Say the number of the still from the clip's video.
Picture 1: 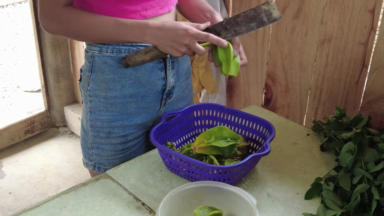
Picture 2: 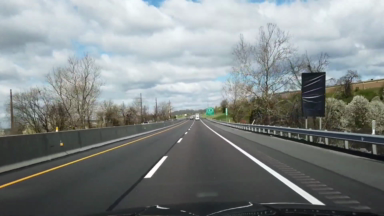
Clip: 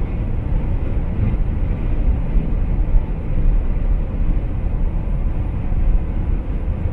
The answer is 2